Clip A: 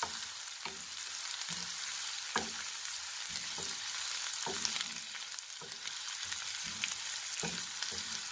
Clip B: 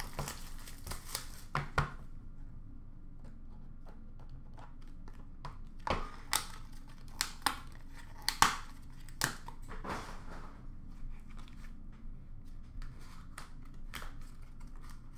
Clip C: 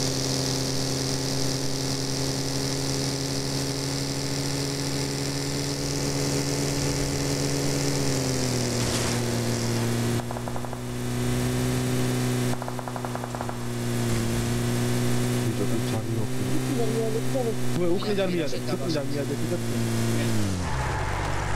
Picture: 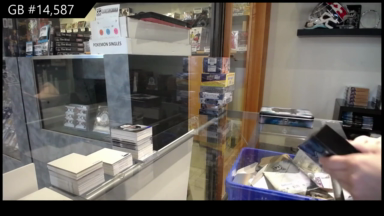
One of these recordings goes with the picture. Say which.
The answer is B